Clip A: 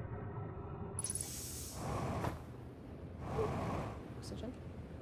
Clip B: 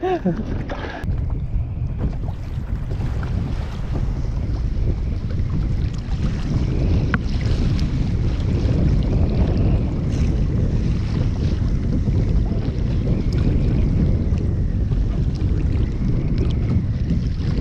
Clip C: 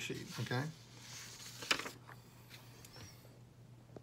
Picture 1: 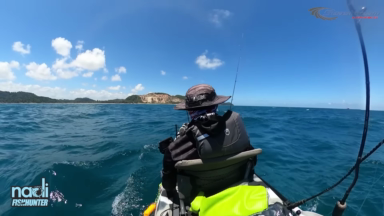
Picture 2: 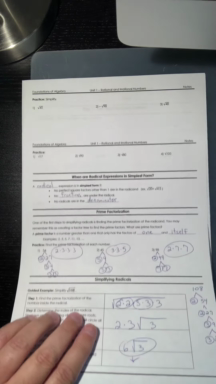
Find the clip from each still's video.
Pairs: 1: B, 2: C